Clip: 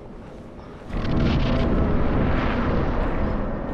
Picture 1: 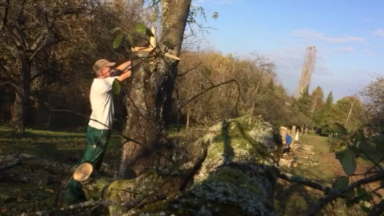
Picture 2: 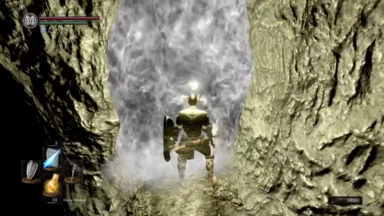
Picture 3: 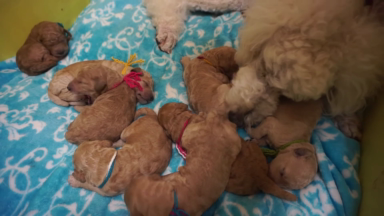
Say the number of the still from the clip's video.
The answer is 2